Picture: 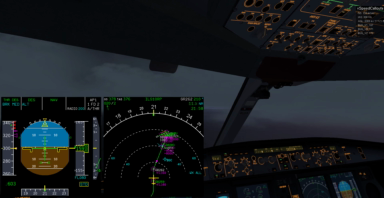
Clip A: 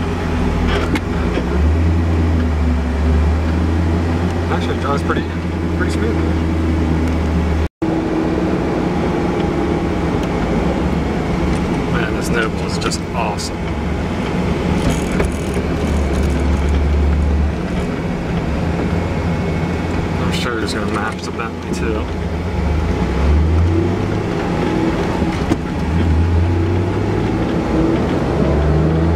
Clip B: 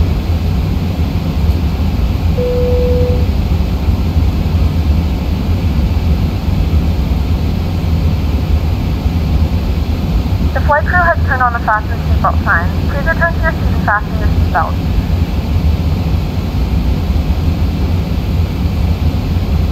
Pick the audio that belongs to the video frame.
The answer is B